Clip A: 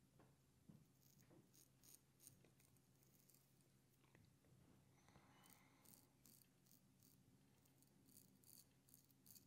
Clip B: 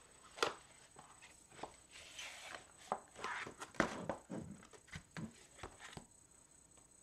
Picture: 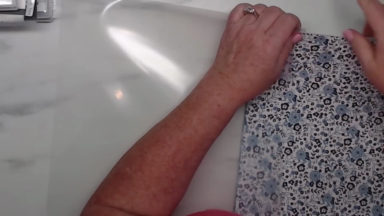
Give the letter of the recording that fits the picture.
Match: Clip B